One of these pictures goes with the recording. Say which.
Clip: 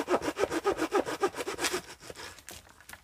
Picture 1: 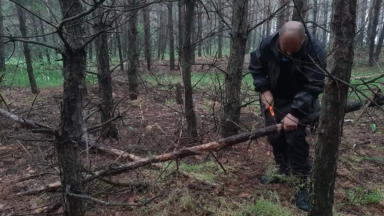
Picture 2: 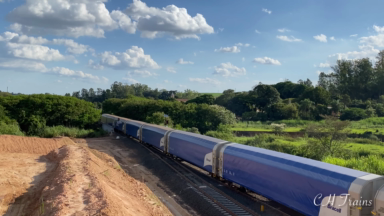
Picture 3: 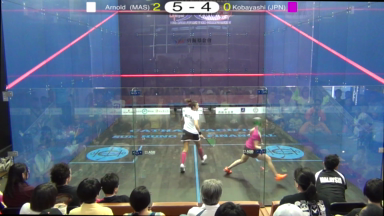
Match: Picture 1